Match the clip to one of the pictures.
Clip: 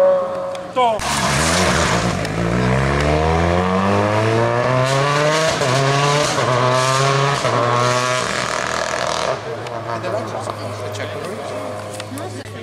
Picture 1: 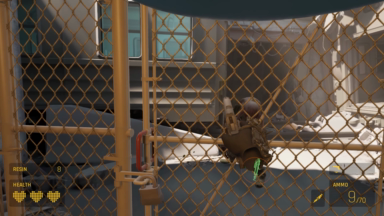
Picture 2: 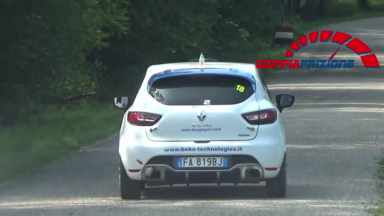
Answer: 2